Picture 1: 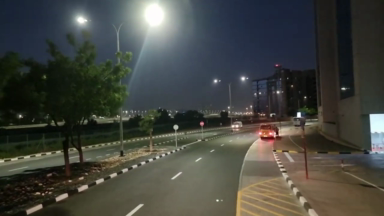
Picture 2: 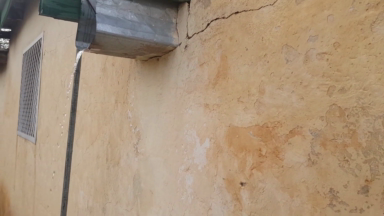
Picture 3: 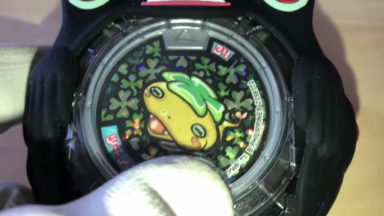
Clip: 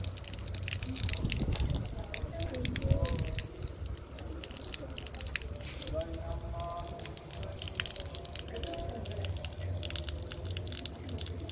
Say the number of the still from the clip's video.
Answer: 2